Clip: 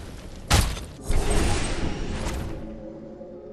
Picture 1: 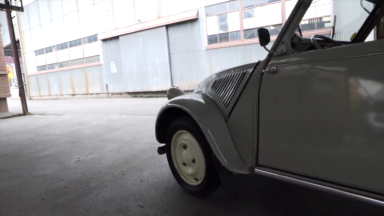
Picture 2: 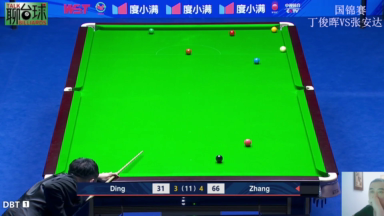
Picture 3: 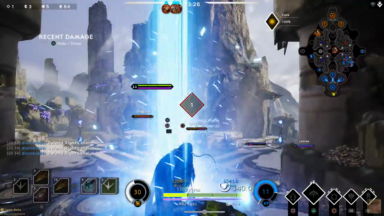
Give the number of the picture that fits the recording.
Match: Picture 3